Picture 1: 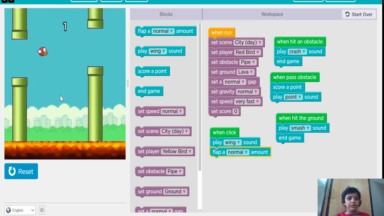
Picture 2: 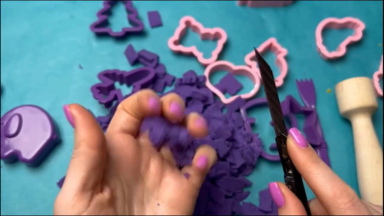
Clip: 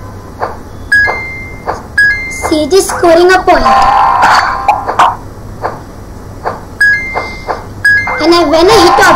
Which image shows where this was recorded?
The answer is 1